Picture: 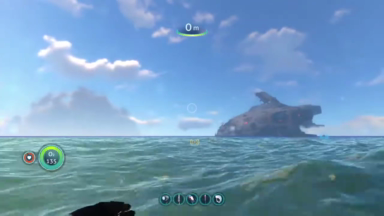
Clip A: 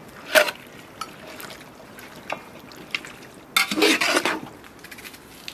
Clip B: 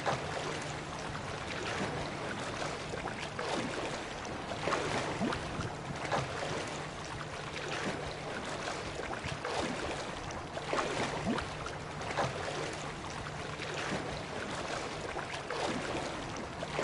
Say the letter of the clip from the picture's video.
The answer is B